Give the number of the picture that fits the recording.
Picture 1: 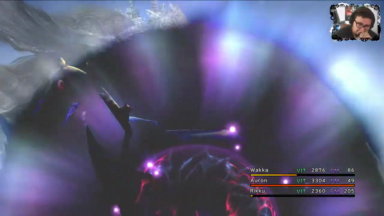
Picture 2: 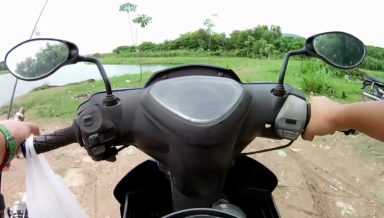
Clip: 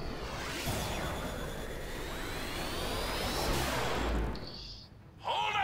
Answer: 1